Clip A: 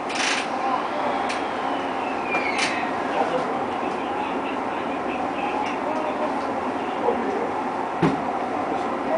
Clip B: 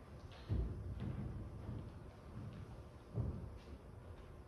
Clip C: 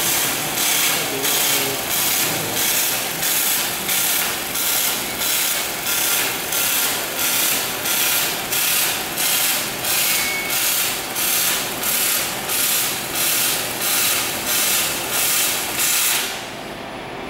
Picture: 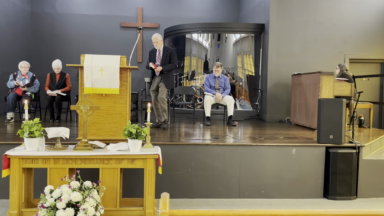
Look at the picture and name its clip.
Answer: B